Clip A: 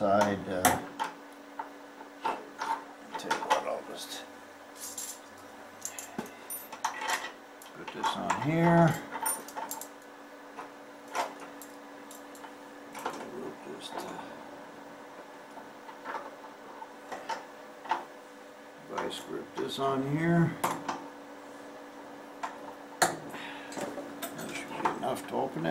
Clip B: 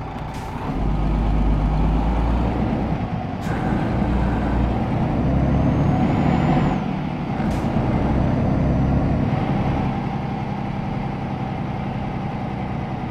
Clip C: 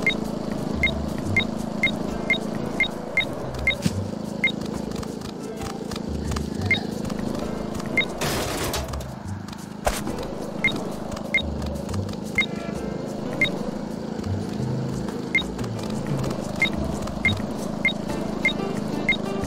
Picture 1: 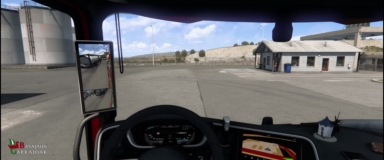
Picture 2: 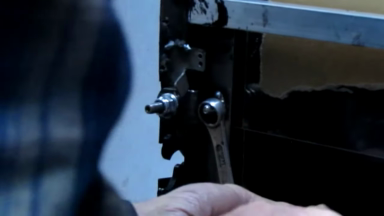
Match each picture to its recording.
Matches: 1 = B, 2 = A